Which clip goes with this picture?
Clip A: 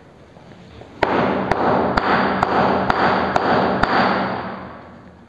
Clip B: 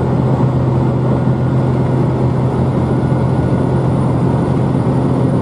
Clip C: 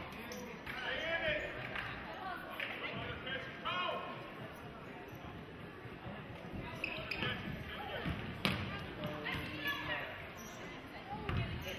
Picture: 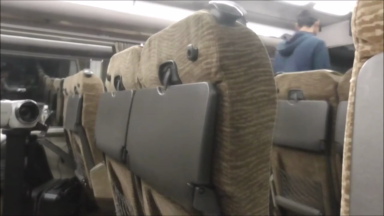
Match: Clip B